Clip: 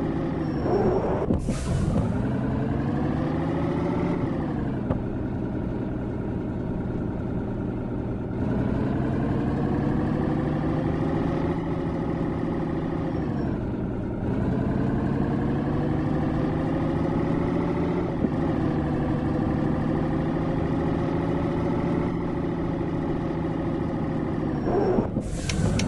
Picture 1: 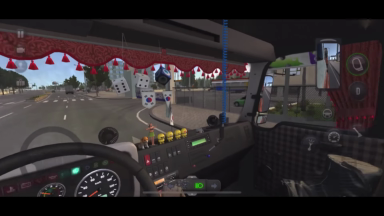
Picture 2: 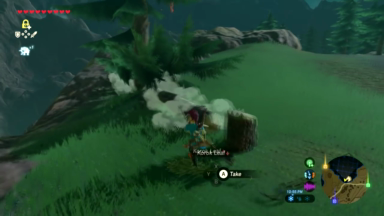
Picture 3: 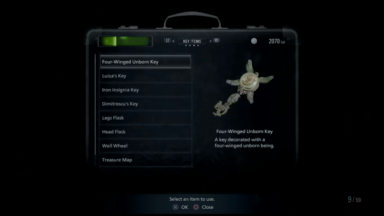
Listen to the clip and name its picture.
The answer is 1